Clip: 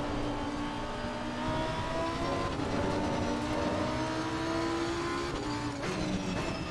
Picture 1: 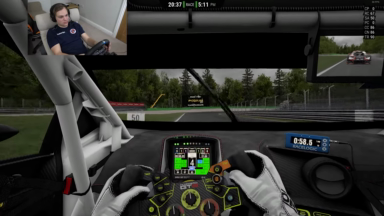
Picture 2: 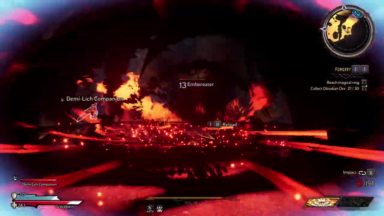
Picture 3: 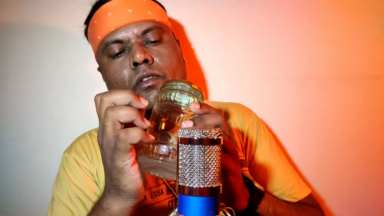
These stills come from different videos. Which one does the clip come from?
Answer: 1